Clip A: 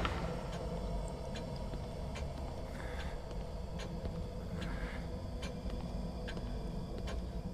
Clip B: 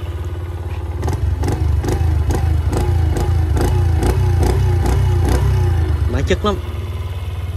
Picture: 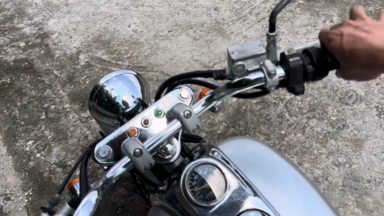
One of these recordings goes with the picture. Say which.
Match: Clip B